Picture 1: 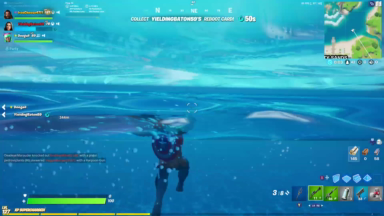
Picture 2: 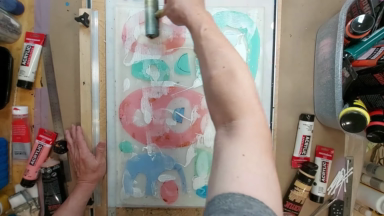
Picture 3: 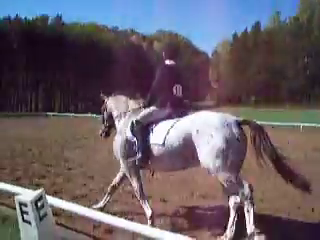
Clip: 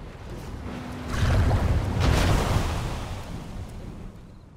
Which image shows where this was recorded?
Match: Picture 1